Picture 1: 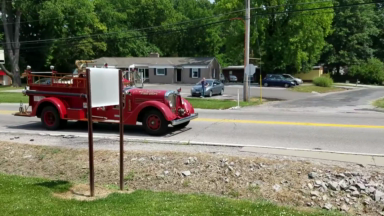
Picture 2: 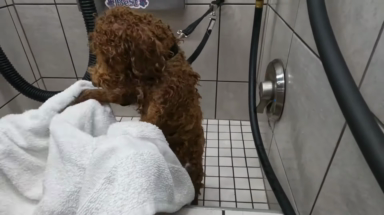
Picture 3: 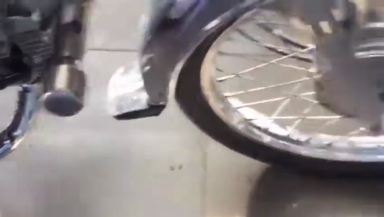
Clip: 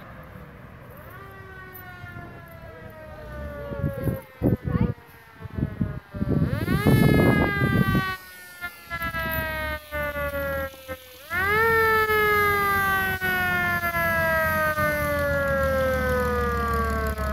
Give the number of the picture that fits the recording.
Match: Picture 1